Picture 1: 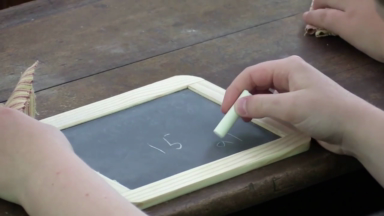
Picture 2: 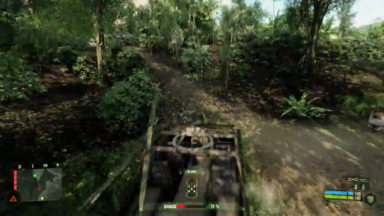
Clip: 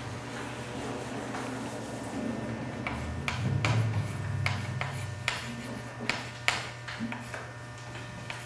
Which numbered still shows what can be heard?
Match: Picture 1